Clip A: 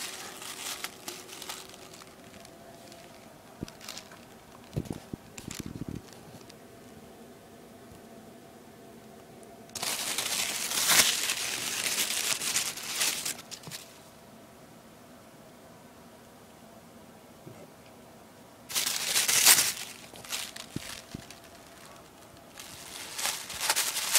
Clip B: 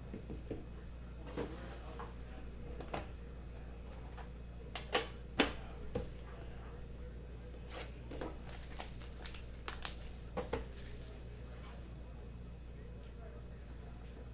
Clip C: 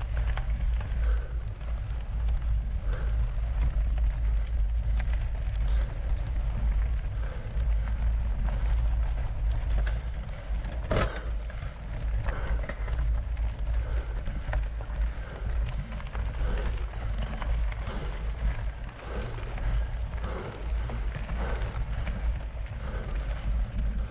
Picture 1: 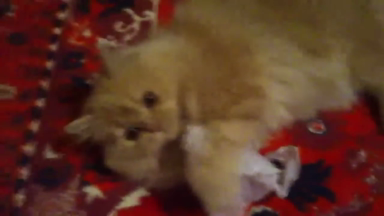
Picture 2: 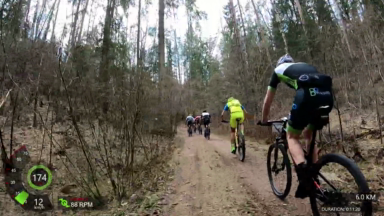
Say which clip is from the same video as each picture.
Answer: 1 A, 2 C